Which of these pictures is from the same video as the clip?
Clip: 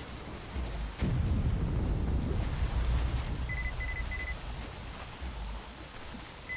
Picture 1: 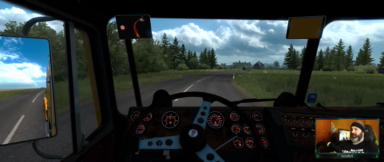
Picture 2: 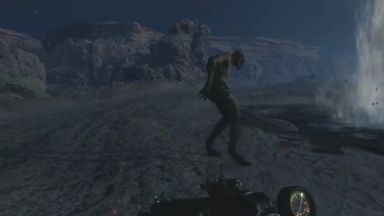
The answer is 2